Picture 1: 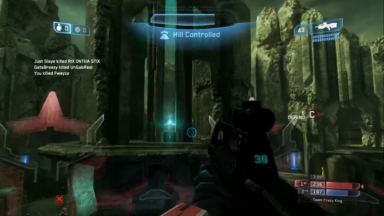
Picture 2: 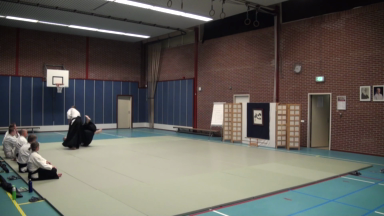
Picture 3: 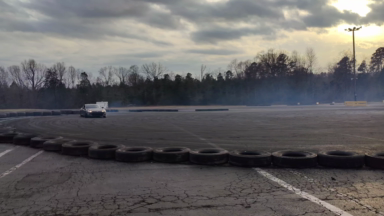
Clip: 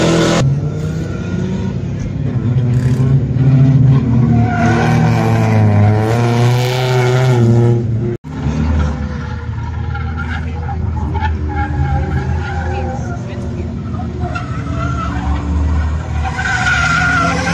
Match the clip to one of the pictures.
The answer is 3